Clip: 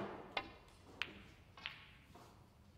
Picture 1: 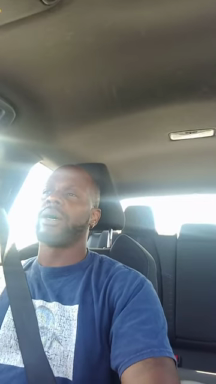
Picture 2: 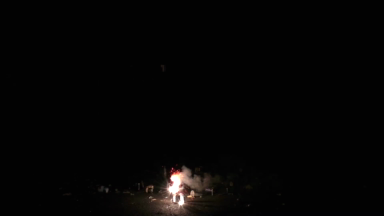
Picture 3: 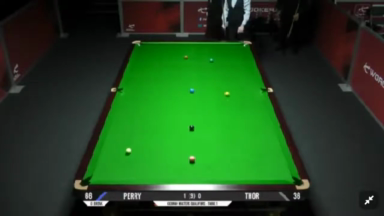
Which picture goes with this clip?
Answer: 3